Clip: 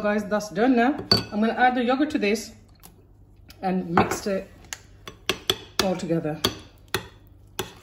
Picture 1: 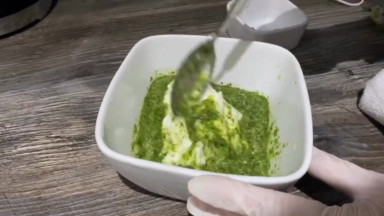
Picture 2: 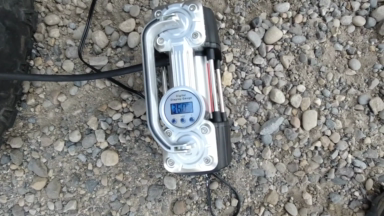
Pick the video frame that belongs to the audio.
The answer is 1